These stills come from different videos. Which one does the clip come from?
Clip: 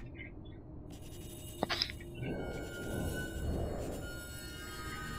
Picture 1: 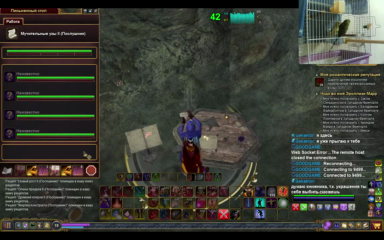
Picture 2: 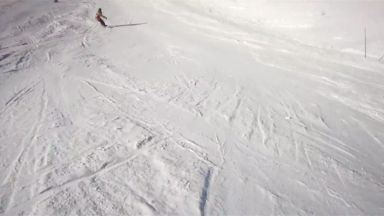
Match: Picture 1